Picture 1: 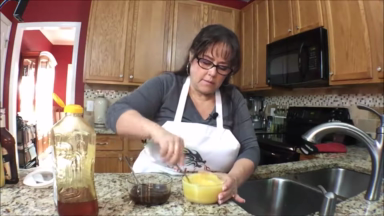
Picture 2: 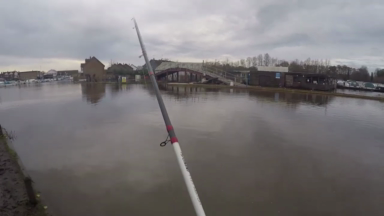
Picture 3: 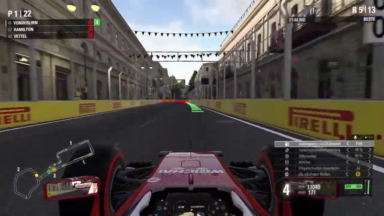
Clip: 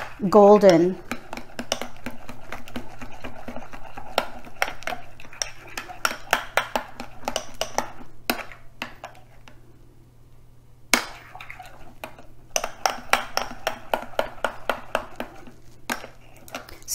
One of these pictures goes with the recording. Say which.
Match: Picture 1